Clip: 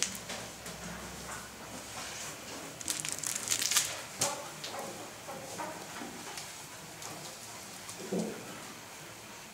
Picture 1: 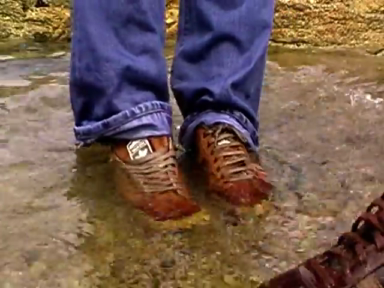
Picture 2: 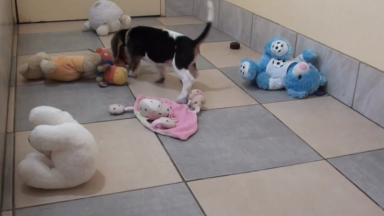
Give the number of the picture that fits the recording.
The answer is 2